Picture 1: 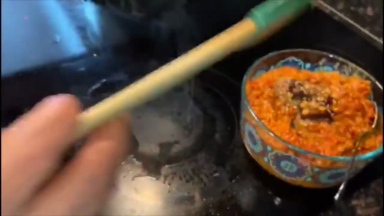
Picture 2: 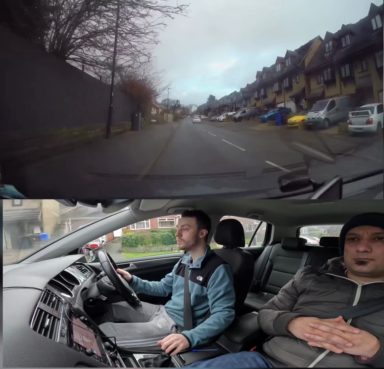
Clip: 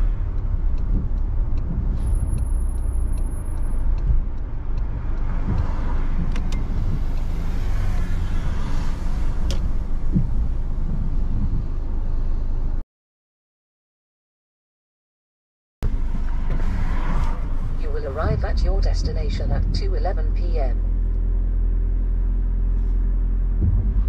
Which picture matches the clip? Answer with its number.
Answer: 2